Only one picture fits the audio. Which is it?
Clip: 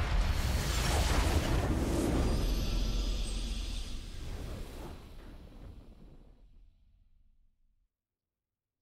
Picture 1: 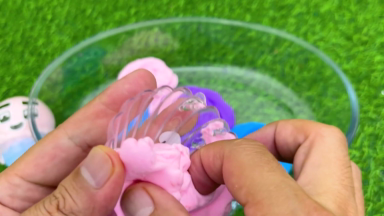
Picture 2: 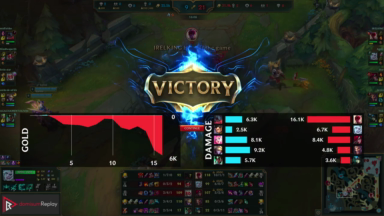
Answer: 2